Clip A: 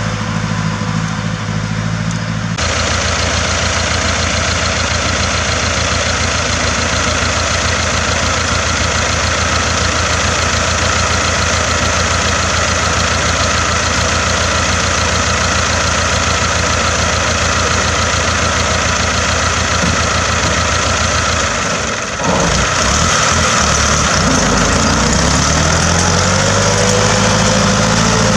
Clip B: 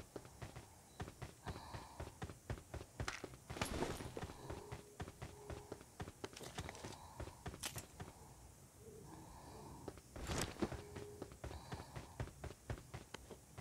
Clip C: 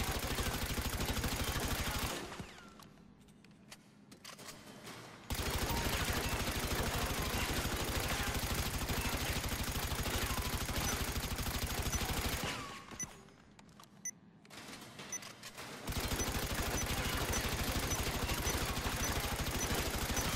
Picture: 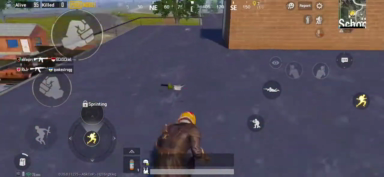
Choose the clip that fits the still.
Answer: B